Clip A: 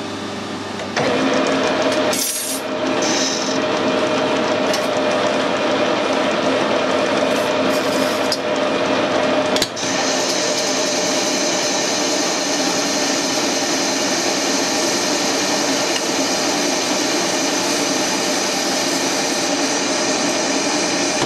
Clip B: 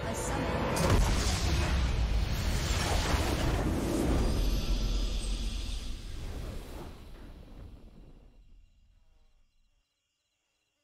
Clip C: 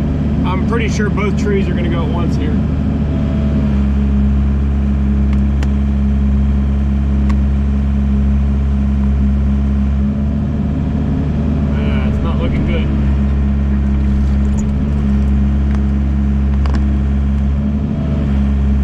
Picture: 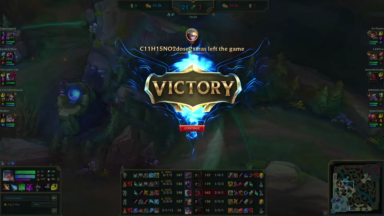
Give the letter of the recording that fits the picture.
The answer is B